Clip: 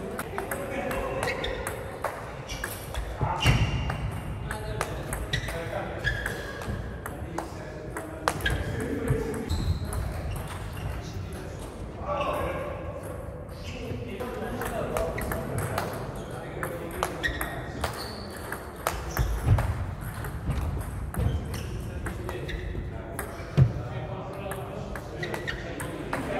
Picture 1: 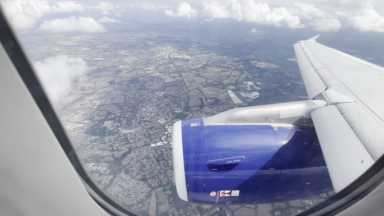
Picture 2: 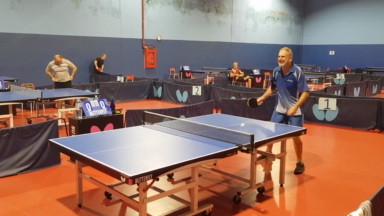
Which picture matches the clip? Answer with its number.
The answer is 2